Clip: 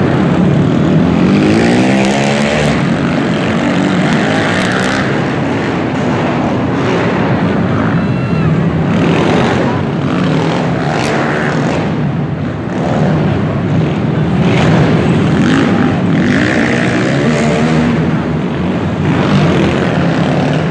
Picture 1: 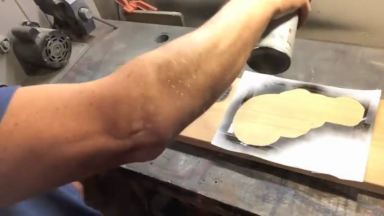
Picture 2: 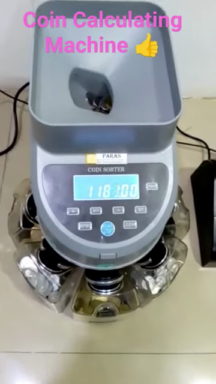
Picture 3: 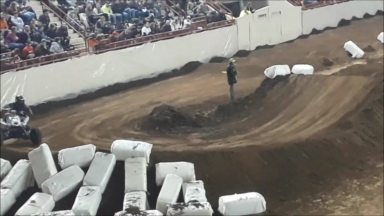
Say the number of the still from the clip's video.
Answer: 3